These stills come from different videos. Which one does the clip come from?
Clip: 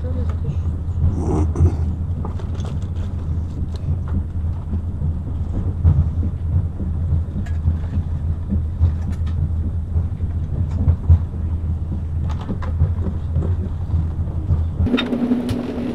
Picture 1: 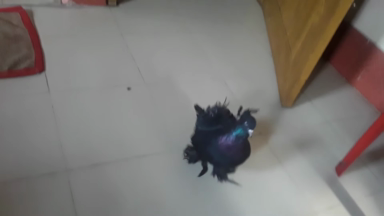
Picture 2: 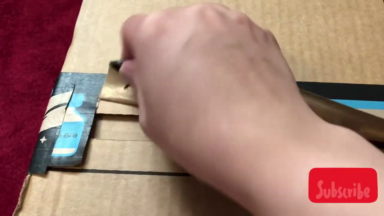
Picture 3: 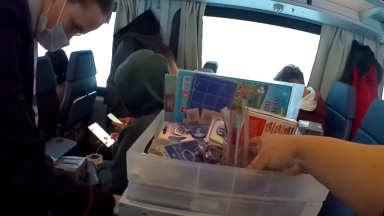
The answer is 3